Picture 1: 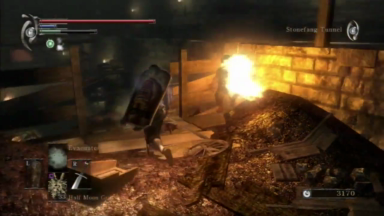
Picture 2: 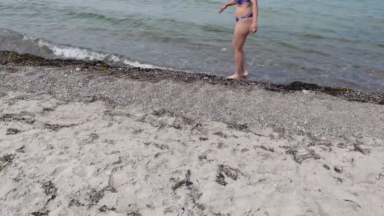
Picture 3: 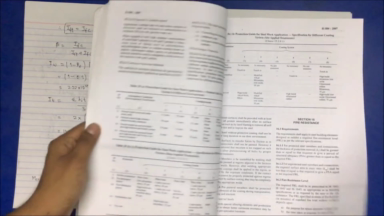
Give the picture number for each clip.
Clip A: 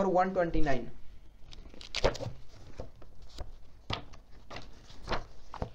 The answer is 3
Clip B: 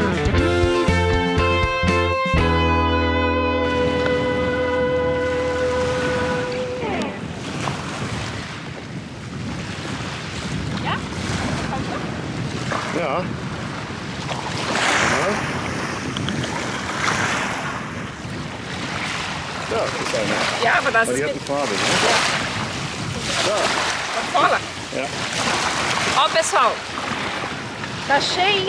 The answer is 2